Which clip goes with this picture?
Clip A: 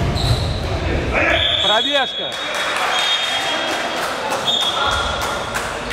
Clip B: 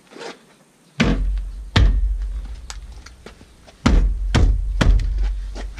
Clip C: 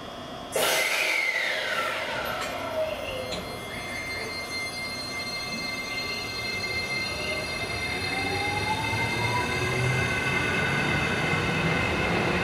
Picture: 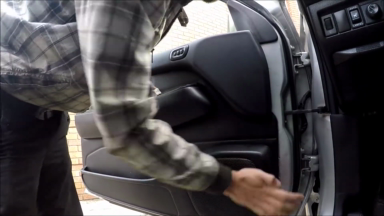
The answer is B